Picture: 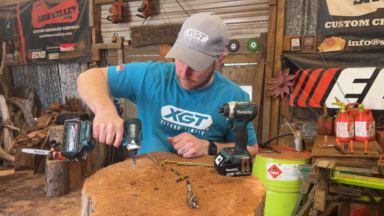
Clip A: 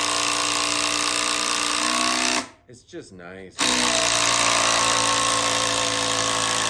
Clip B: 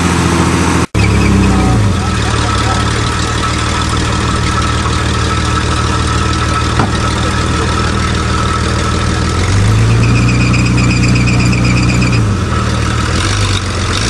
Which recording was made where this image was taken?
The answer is A